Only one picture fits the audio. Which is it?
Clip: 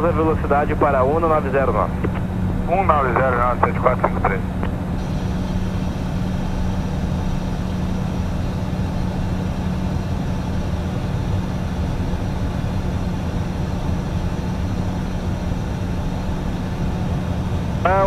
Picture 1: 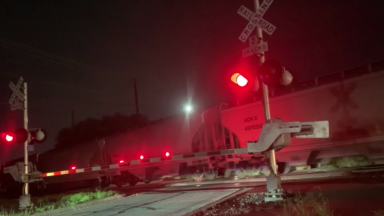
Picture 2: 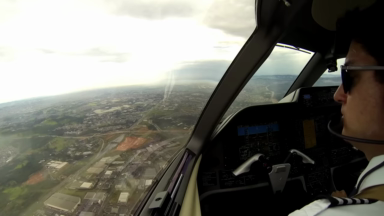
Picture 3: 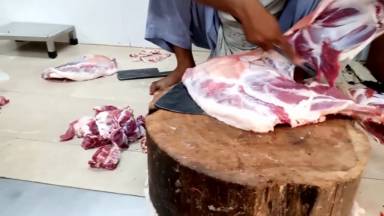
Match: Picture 2